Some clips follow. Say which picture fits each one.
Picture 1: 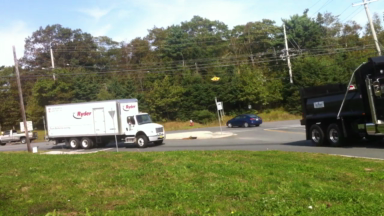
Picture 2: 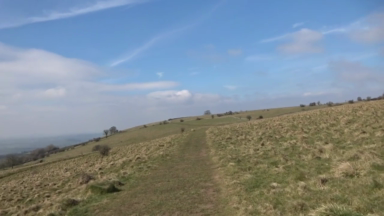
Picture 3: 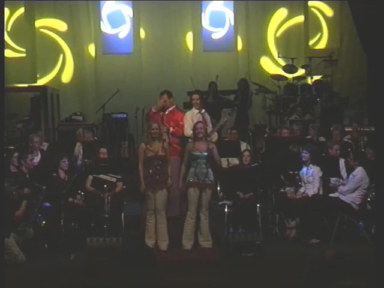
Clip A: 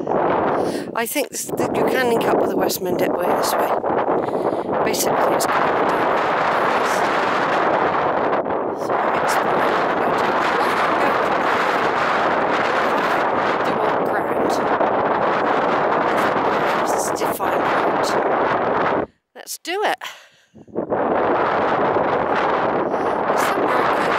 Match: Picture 2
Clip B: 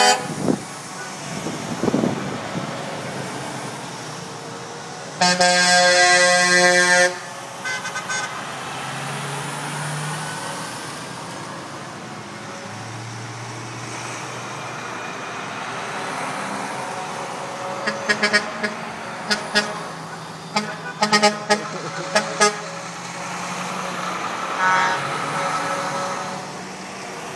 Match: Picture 1